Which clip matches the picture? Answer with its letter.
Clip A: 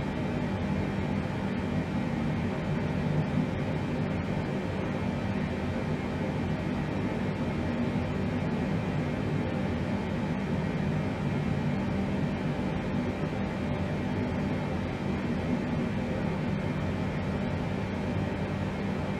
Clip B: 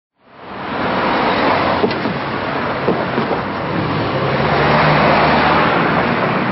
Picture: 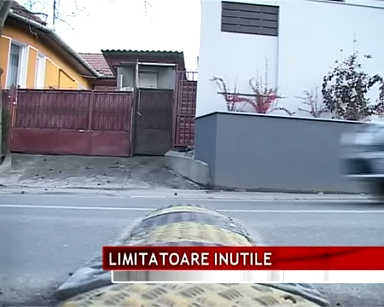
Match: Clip B